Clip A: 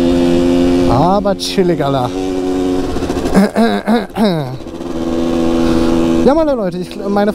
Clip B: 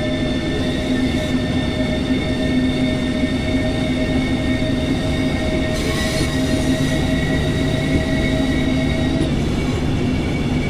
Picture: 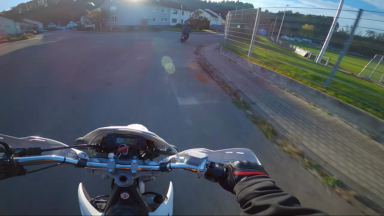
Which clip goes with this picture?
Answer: A